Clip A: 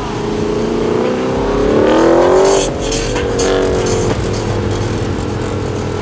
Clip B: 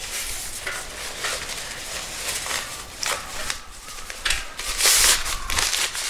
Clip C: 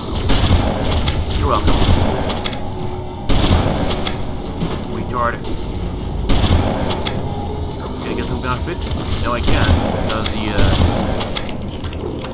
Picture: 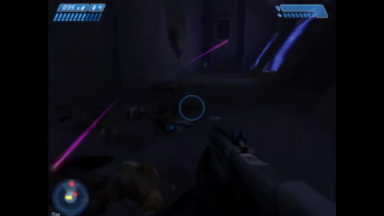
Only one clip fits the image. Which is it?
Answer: C